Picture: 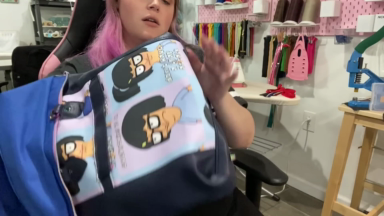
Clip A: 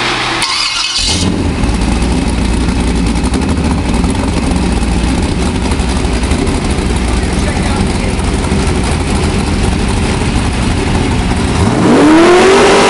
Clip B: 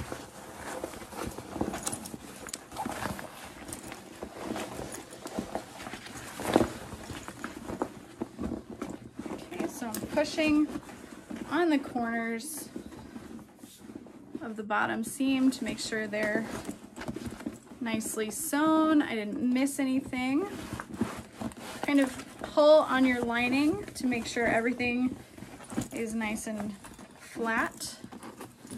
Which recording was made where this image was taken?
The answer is B